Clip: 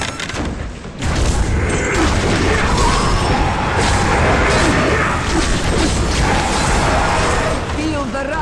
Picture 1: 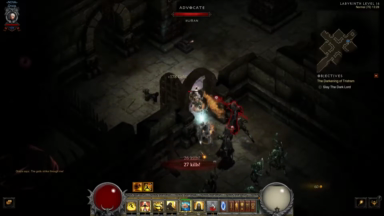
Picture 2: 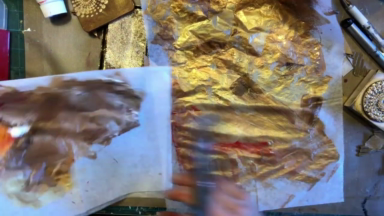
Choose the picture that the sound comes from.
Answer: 1